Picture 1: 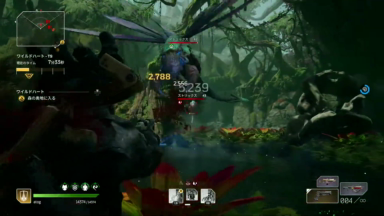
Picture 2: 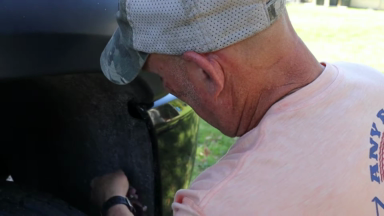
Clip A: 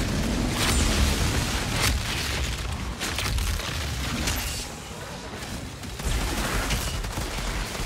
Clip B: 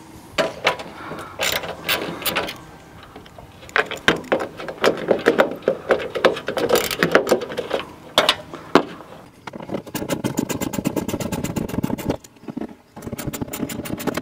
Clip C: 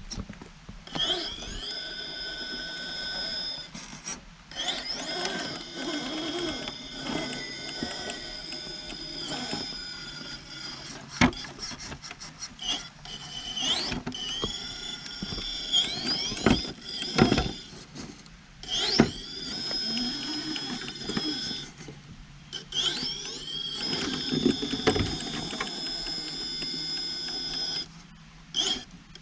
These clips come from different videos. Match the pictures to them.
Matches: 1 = A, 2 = B